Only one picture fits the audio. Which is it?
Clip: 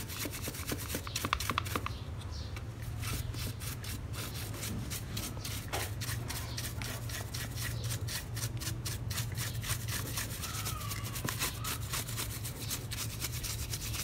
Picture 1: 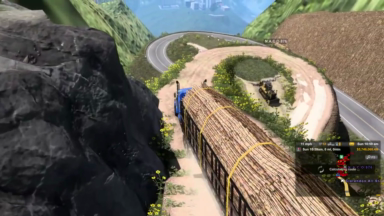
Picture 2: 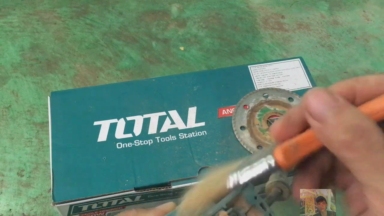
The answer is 2